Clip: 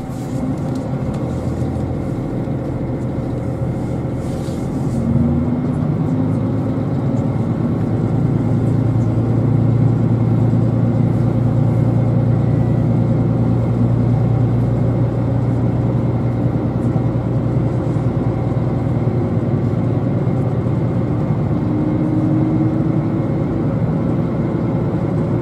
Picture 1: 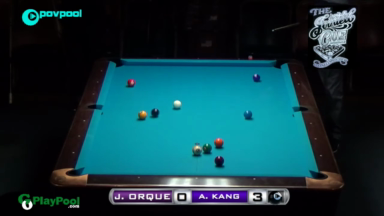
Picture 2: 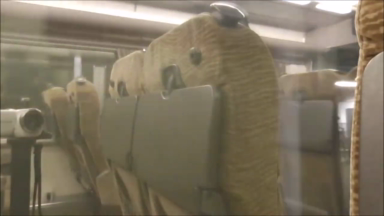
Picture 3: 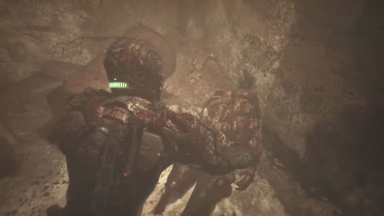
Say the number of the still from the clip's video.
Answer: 2